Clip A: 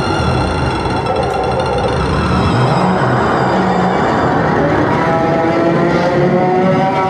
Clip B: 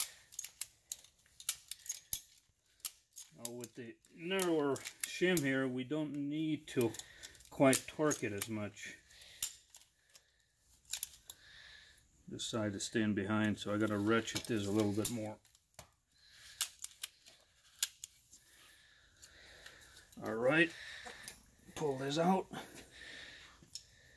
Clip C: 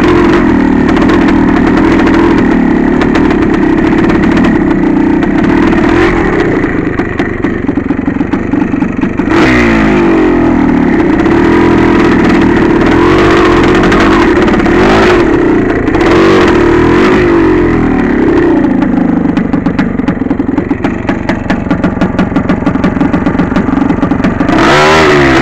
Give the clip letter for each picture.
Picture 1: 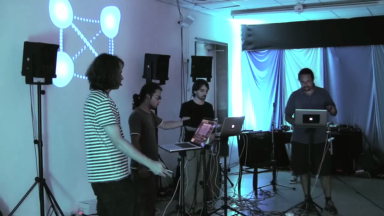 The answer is A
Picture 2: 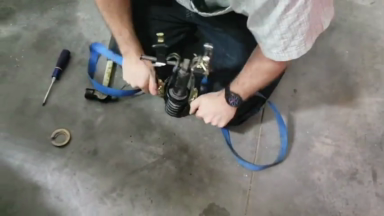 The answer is B